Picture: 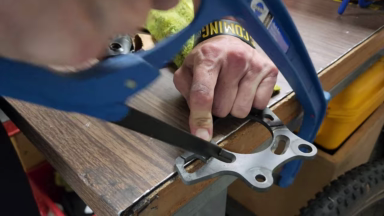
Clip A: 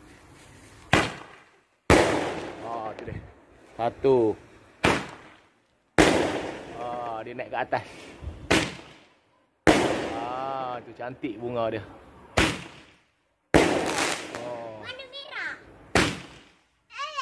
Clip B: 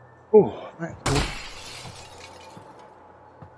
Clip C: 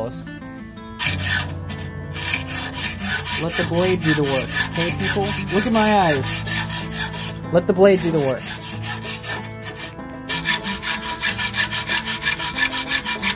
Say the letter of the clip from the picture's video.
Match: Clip C